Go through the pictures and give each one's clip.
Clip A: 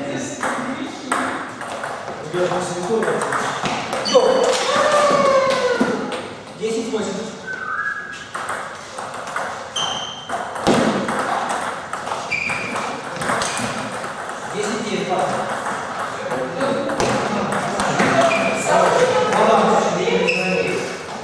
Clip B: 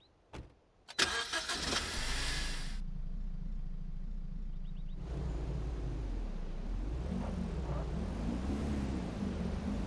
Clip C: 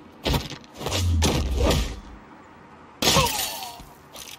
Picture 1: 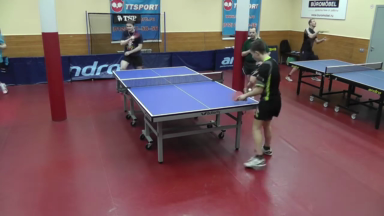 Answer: A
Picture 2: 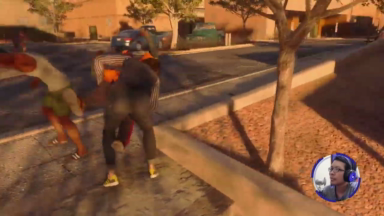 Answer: C